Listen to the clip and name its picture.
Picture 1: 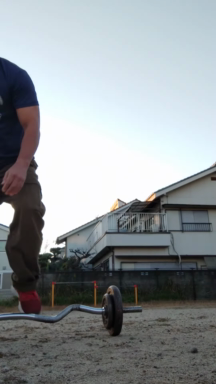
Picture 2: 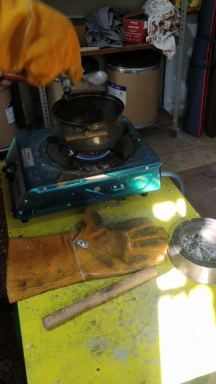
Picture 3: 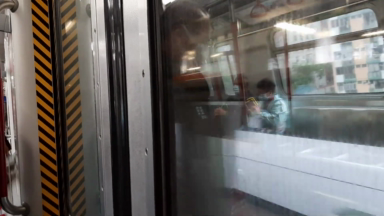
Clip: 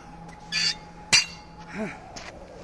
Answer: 1